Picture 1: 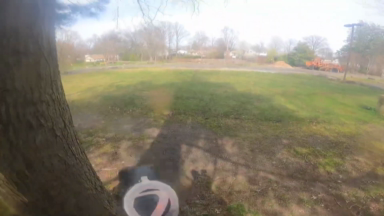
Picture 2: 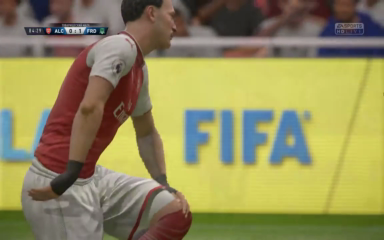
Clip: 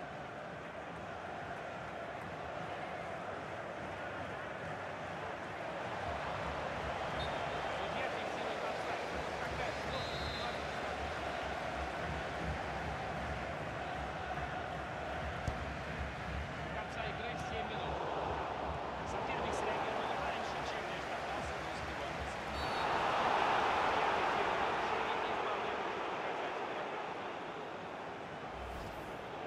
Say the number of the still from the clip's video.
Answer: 2